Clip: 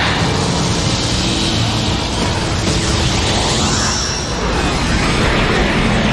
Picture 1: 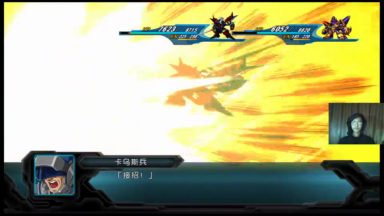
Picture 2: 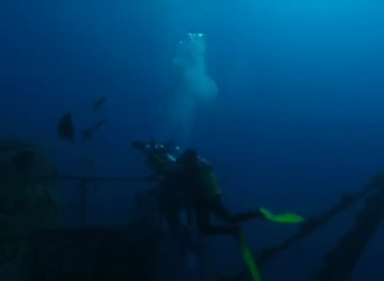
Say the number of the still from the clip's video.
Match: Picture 1